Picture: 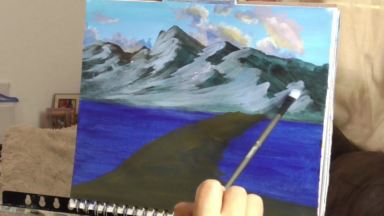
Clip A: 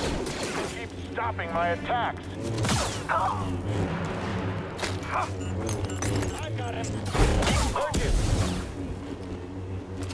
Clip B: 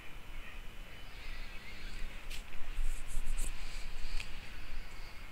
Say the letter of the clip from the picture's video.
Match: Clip B